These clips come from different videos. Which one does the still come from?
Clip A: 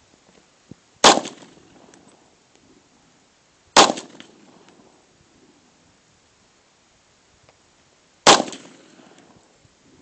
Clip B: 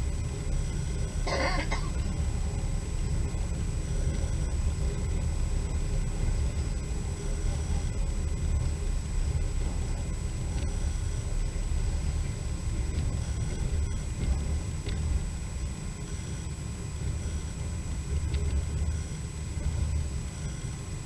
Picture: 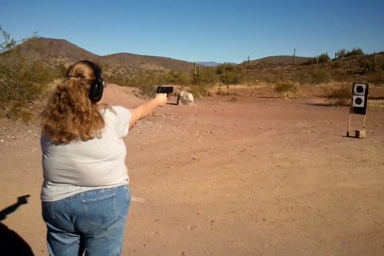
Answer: A